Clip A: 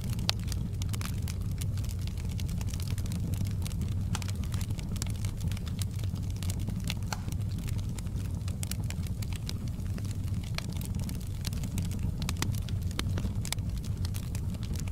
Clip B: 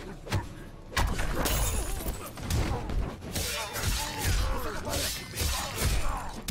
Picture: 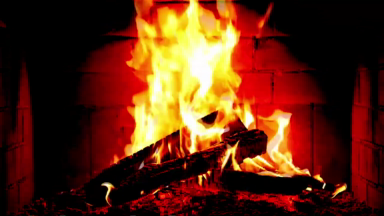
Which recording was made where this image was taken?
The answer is A